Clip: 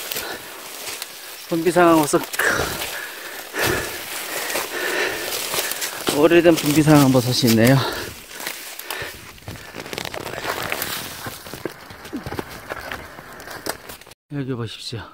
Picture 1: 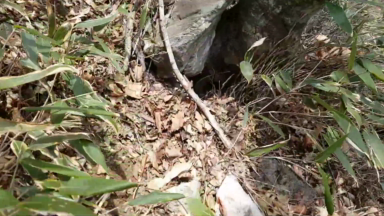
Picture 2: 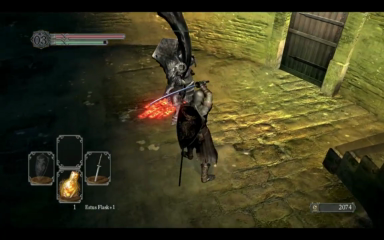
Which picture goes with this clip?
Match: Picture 1